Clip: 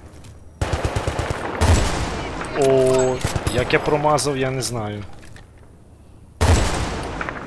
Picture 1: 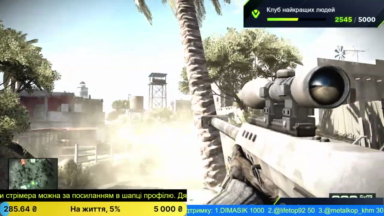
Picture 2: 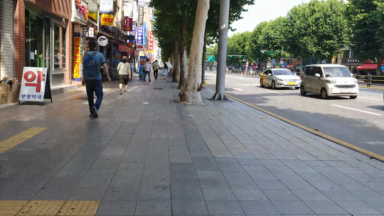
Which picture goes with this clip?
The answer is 1